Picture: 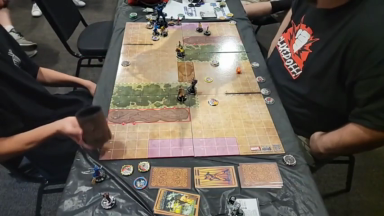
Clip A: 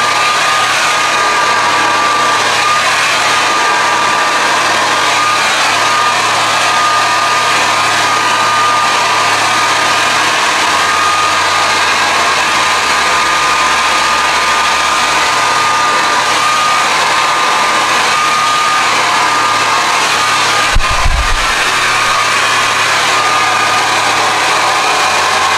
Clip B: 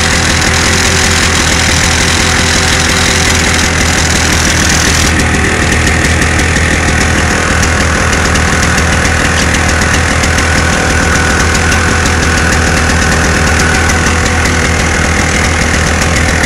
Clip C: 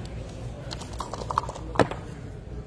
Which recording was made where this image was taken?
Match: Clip C